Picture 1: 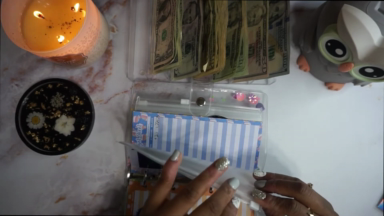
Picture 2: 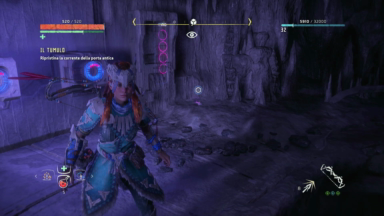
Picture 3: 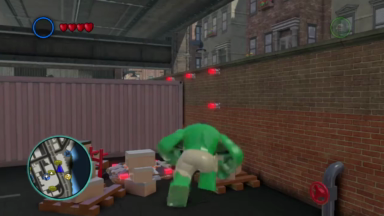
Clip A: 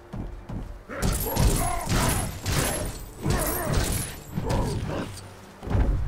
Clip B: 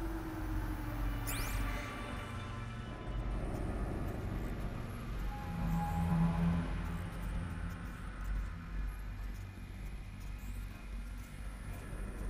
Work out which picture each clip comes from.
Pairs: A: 3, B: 2